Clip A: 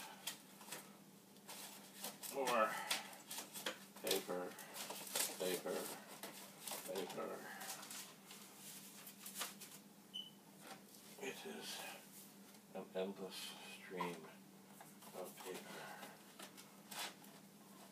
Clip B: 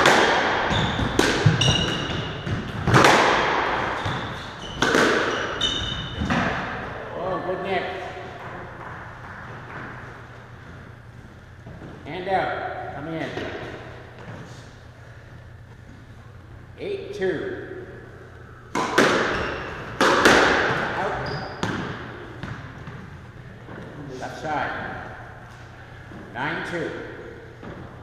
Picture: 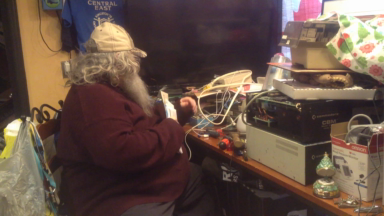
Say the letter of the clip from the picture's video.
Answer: A